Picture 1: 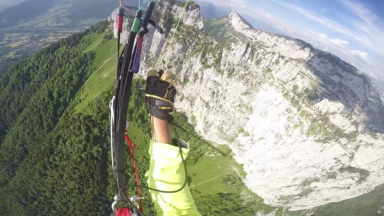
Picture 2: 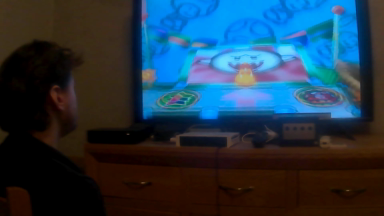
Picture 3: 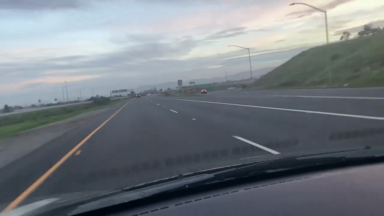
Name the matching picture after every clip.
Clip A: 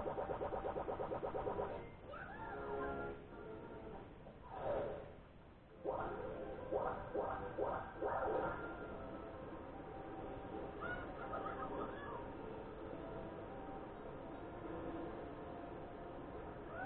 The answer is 2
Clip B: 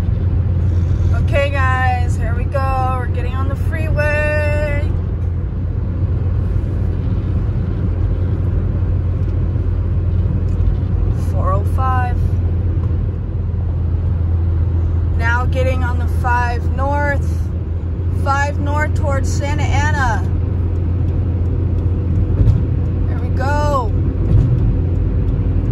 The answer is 3